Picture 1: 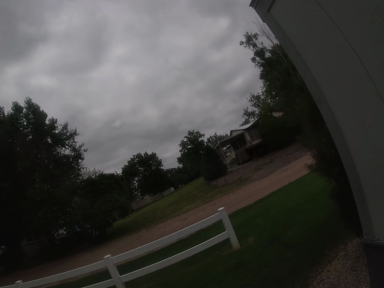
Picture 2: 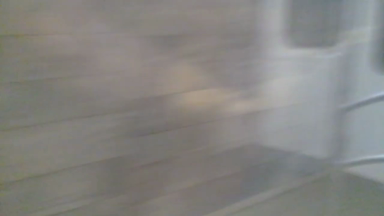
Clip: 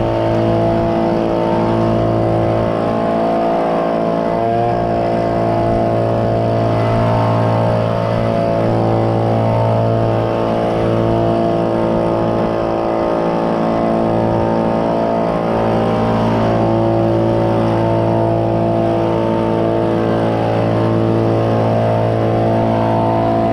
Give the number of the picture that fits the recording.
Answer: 1